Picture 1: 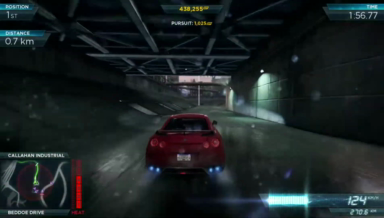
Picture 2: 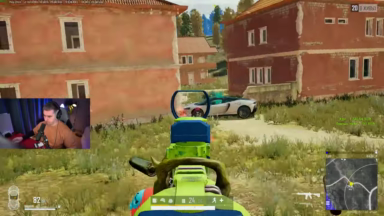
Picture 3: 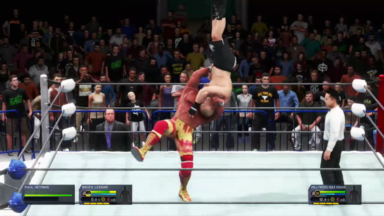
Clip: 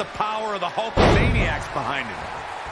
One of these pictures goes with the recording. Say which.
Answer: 3